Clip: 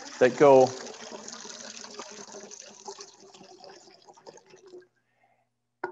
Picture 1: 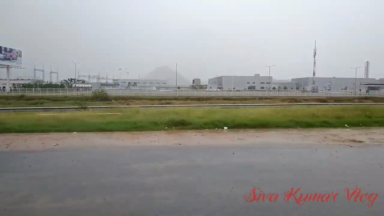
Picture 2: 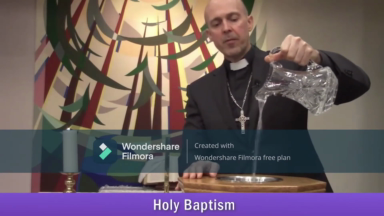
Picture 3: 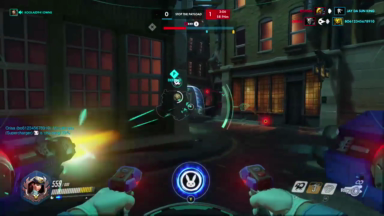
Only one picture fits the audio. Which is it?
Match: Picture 2